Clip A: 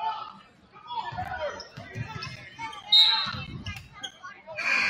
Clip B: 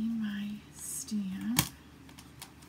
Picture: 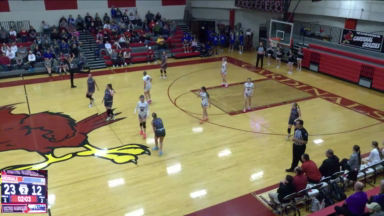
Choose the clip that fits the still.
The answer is A